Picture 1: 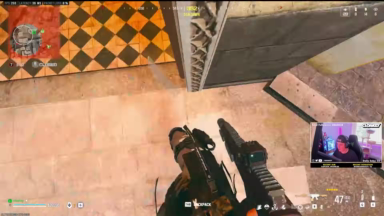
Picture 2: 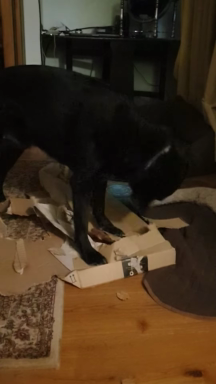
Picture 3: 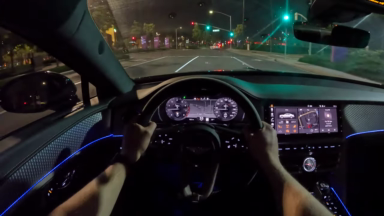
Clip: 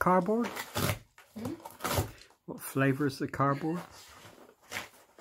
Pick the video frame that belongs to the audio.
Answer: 2